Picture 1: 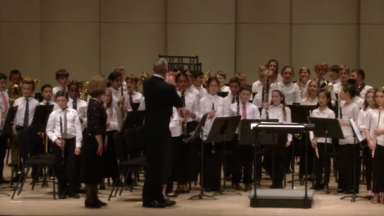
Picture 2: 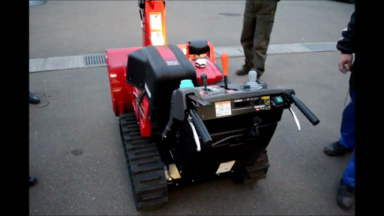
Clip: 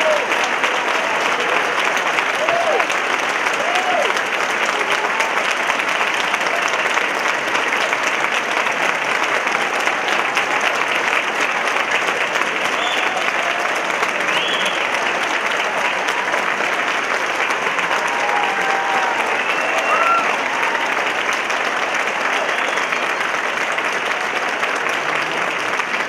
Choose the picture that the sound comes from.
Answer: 1